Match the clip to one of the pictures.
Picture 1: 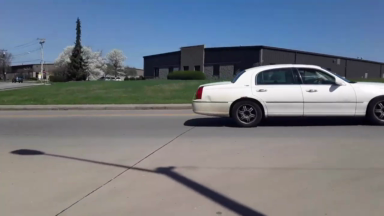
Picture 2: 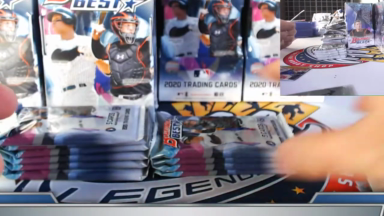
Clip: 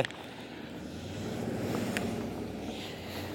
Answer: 1